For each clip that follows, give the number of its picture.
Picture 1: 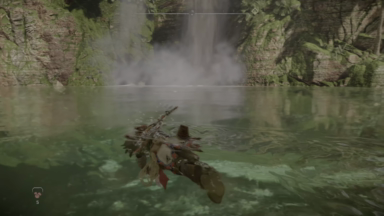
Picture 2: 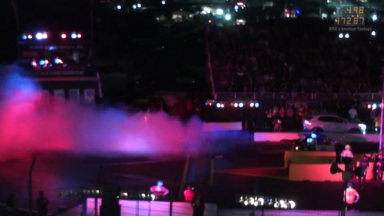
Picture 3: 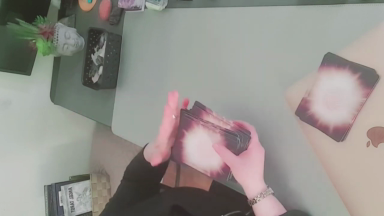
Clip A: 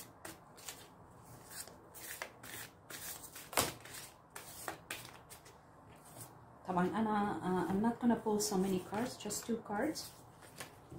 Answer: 3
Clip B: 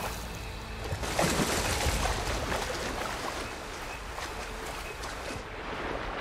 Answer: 1